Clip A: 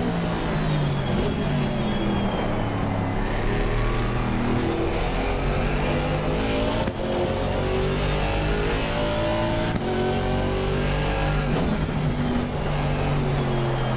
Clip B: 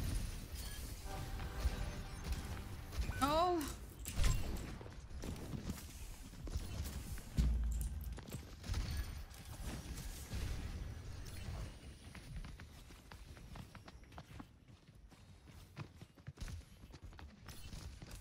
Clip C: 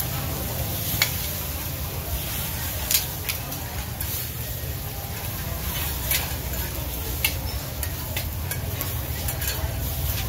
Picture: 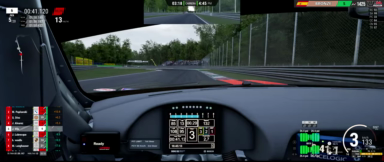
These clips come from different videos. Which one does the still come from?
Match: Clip A